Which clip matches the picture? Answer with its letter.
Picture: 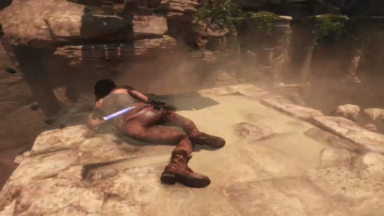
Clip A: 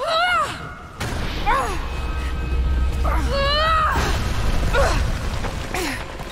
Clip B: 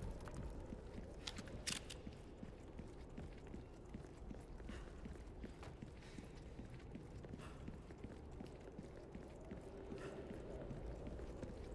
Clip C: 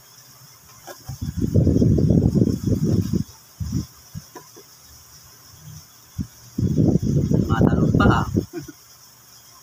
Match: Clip A